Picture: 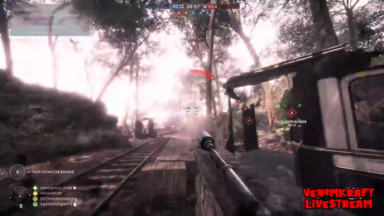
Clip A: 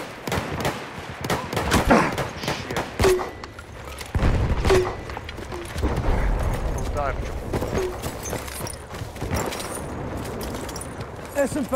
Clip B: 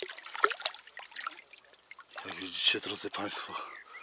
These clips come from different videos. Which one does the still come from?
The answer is A